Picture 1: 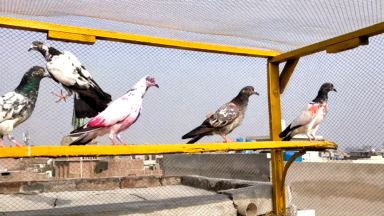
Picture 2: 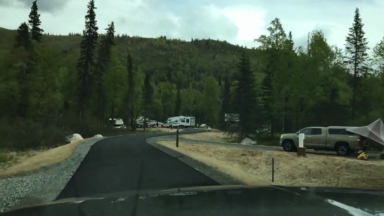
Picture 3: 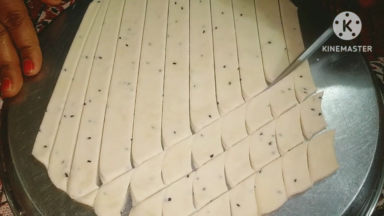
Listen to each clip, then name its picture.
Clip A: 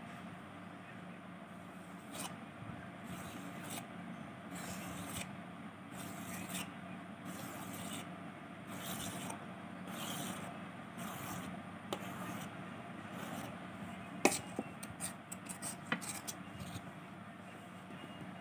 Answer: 3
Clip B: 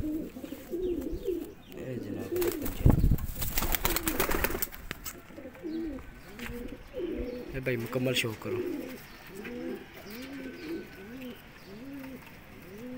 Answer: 1